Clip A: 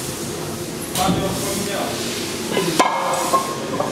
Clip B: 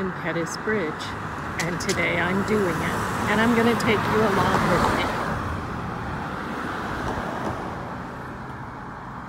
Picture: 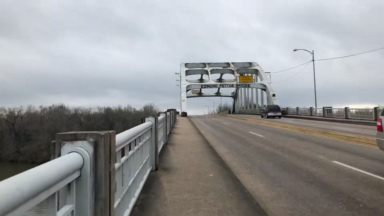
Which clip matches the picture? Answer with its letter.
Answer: B